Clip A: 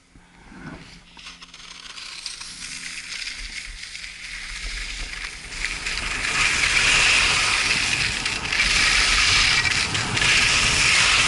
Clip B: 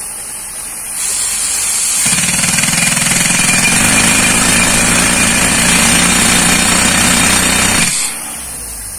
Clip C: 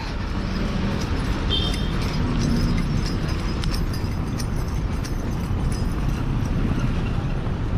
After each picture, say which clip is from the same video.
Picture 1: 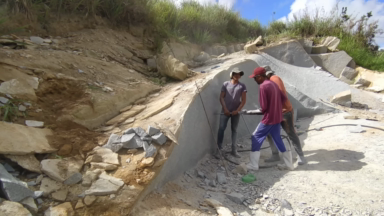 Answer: B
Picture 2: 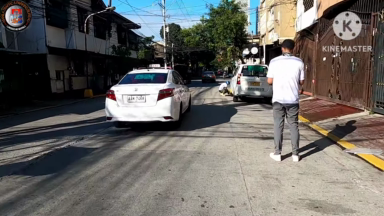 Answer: C